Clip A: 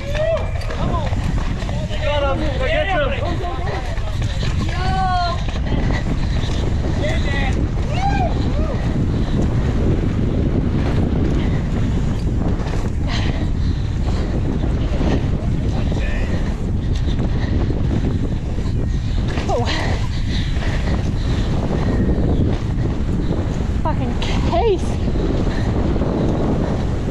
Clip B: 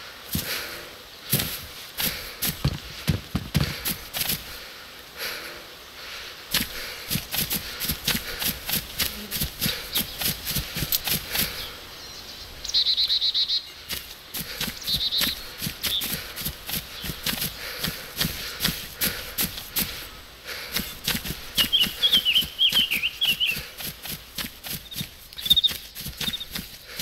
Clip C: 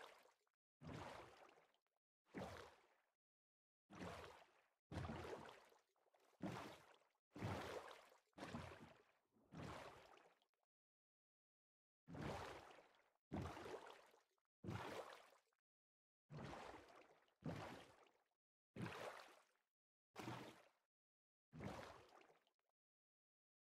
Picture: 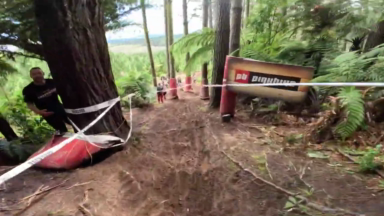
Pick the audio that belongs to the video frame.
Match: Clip A